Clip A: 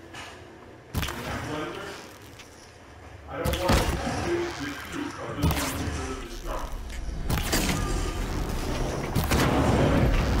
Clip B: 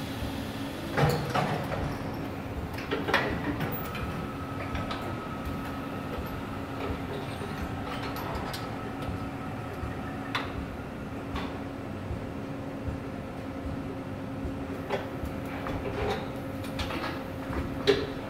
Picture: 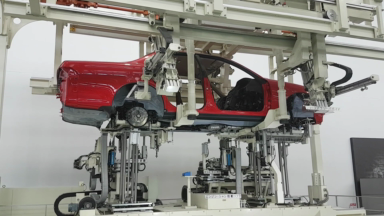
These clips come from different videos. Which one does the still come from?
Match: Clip B